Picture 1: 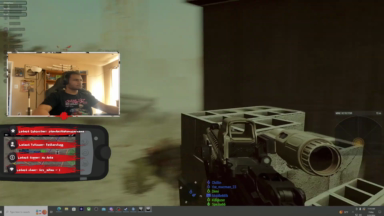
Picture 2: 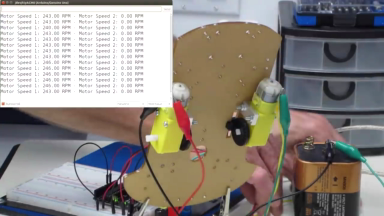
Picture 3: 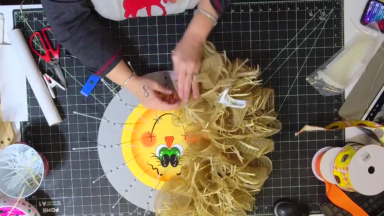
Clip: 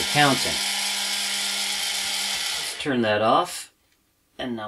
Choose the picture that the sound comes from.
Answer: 2